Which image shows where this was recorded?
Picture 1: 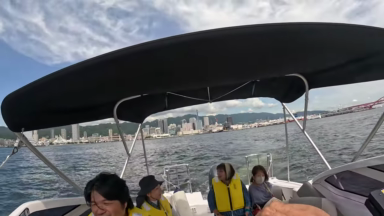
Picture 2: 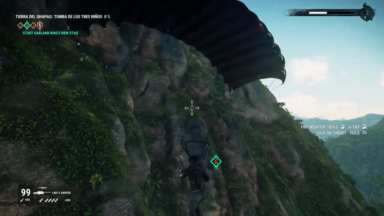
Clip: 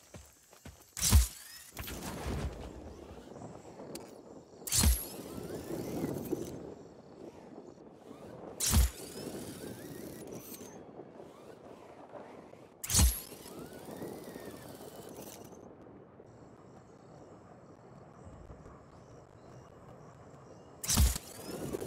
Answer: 2